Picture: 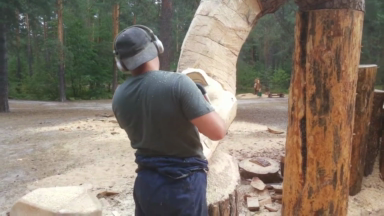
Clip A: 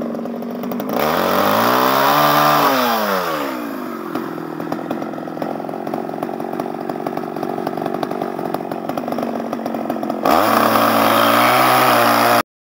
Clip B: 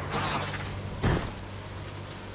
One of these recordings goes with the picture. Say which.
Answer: A